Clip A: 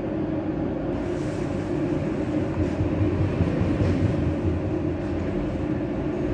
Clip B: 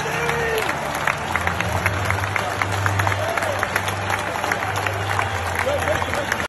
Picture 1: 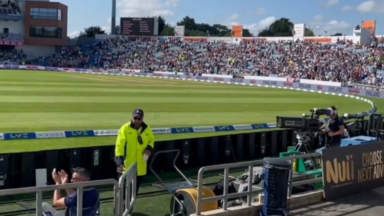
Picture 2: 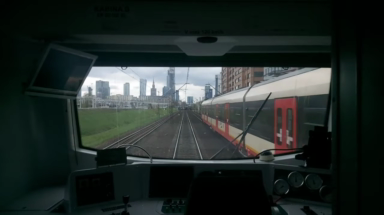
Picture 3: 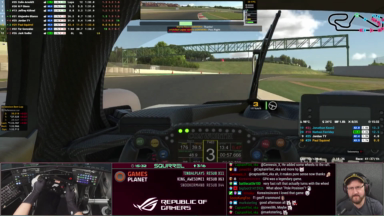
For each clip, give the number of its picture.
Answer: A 2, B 1